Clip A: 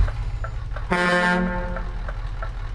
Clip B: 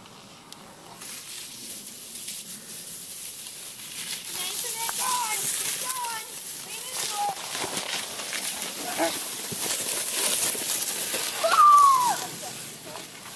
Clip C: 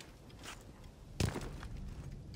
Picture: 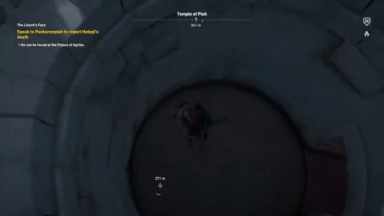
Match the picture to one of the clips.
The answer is C